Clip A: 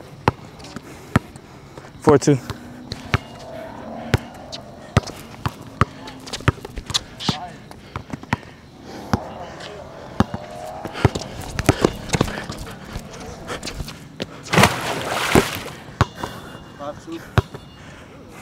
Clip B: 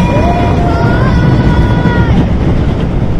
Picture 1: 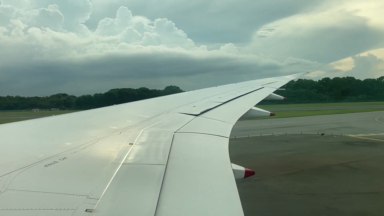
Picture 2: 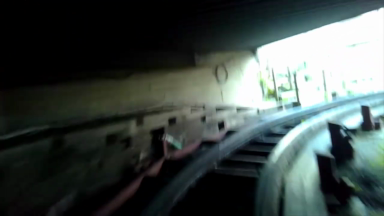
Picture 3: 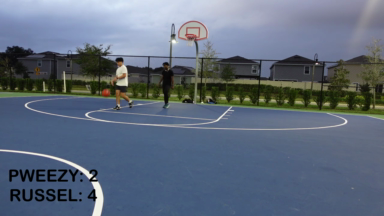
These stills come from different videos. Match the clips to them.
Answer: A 3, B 2